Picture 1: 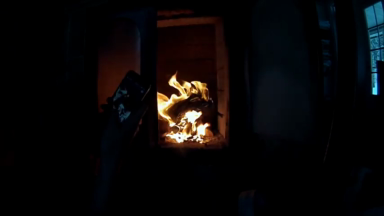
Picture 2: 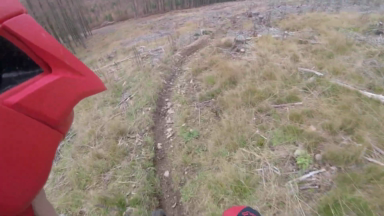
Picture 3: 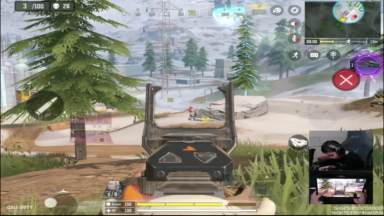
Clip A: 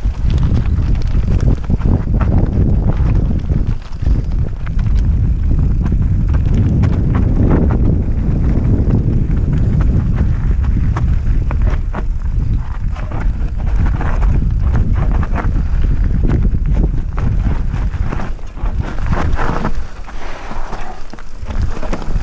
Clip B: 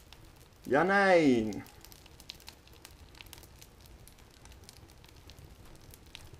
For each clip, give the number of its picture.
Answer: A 2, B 1